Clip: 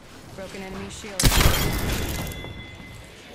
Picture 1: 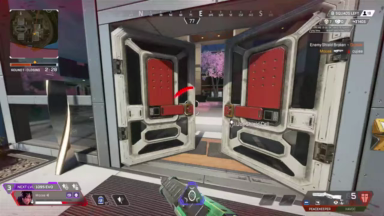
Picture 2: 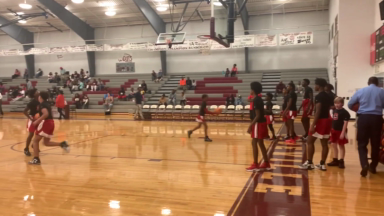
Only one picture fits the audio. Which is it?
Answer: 1